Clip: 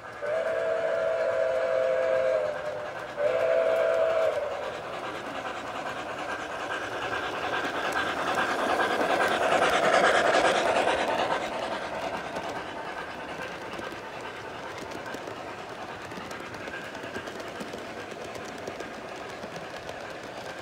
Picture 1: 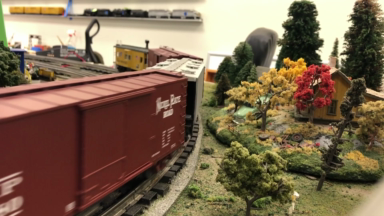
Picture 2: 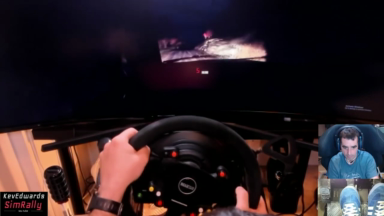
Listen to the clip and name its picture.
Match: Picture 1